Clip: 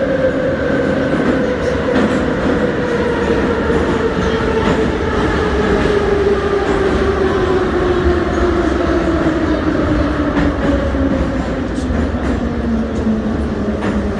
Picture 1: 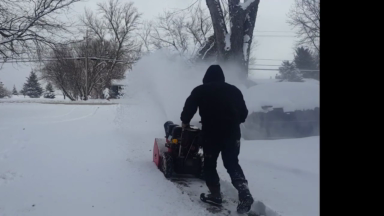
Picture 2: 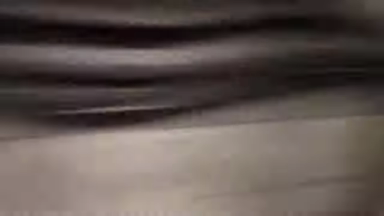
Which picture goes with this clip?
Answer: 2